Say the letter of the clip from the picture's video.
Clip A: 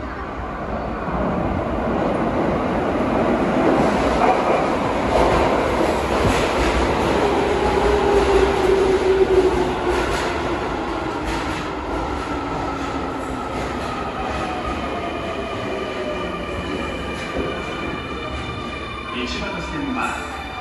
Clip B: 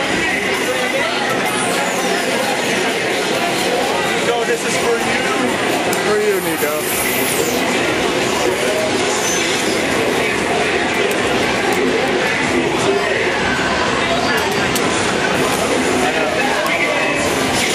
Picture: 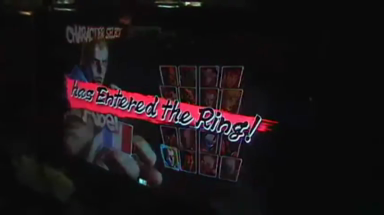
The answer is B